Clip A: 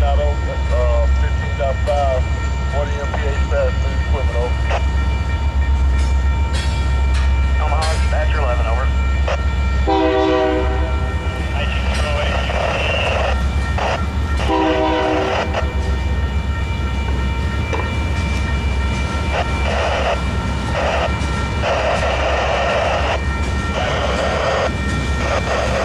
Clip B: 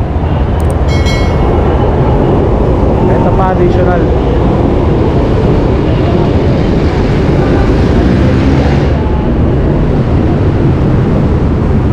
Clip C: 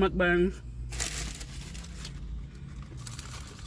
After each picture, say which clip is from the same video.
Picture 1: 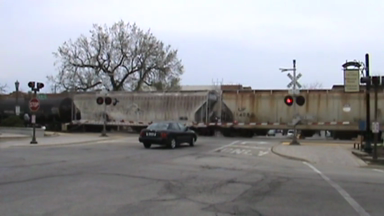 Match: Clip A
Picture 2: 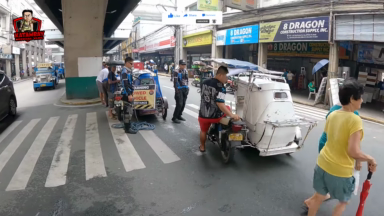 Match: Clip B